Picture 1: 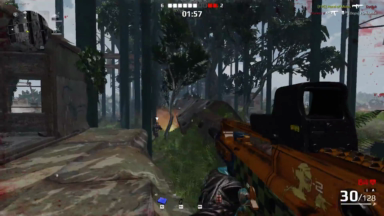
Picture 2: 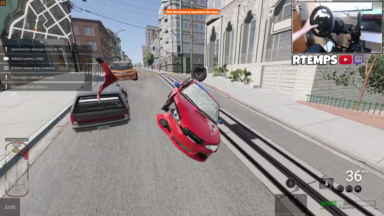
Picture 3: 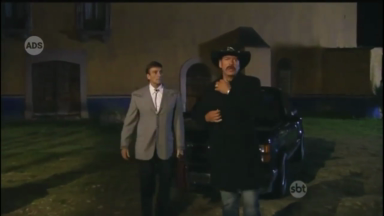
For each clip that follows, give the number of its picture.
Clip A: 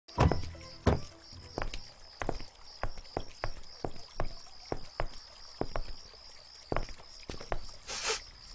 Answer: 3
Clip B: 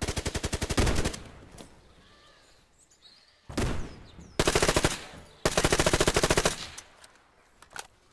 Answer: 1